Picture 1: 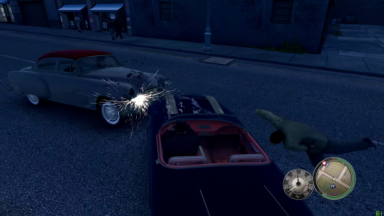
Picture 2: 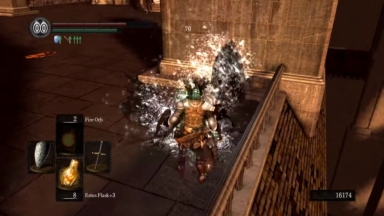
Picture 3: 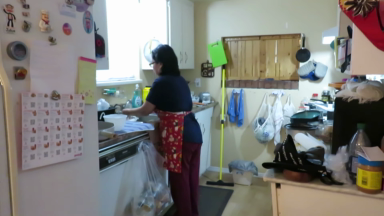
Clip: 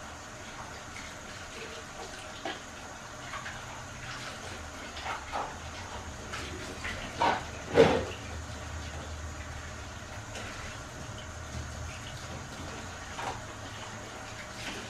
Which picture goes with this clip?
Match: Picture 3